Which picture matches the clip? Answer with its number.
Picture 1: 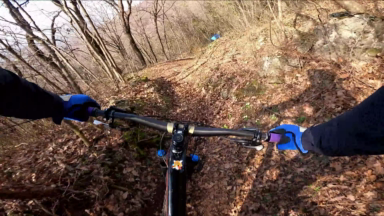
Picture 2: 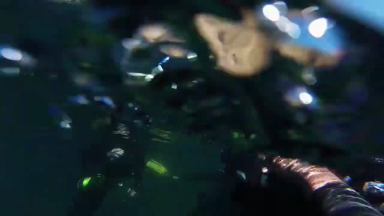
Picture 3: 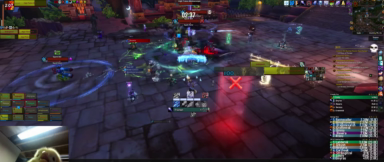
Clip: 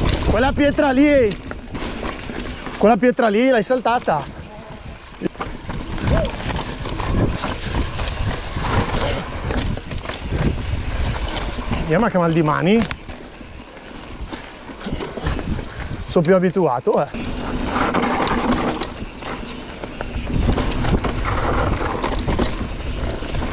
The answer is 1